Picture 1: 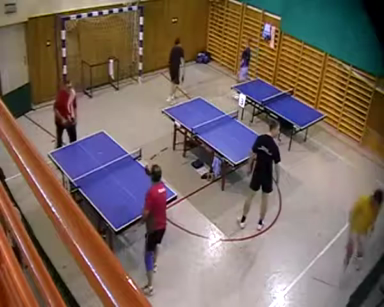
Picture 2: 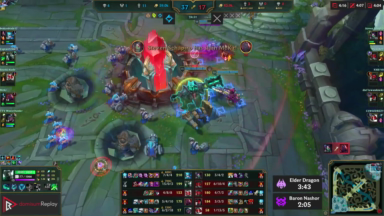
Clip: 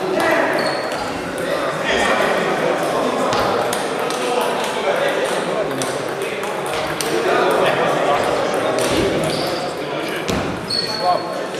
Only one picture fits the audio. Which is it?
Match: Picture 1